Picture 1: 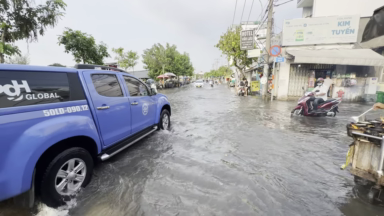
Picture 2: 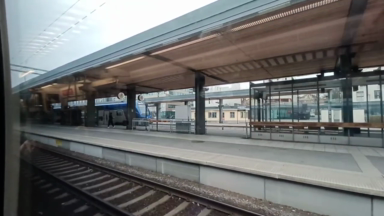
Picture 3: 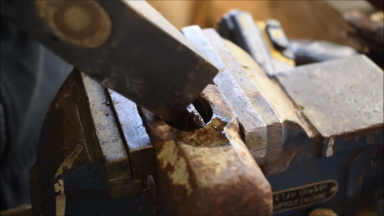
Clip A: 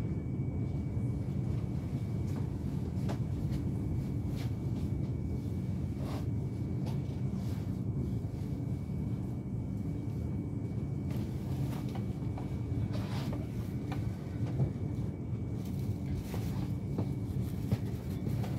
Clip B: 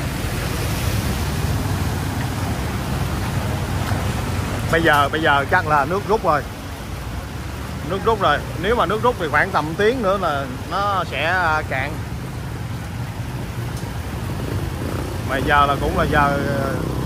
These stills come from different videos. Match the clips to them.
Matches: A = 2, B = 1